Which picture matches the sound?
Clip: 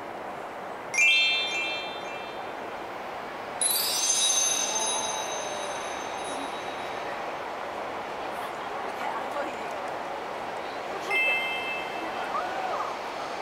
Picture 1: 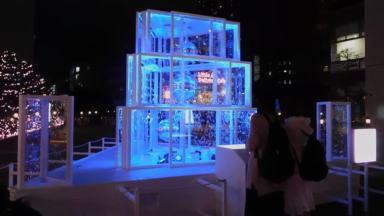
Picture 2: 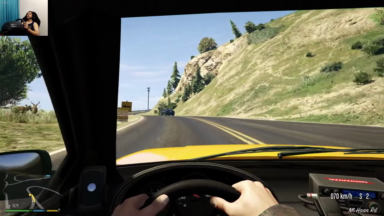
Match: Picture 1